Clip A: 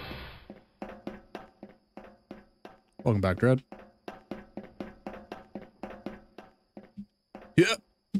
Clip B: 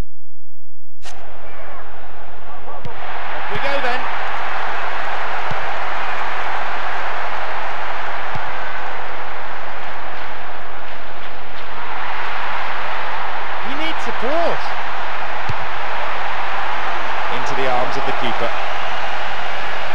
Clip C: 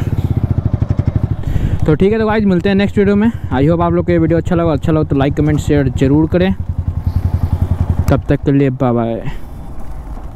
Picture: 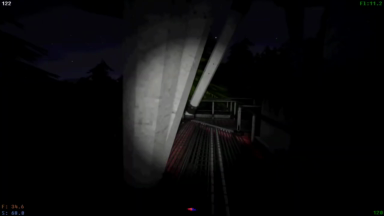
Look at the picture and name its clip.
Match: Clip A